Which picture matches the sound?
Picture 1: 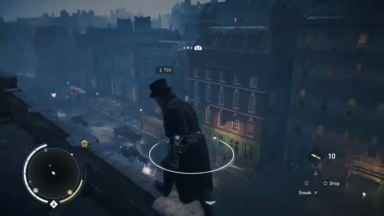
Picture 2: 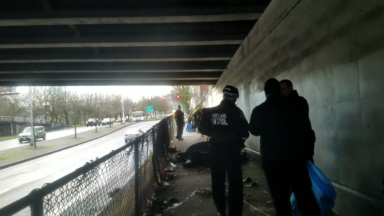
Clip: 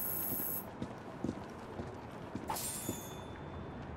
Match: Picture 1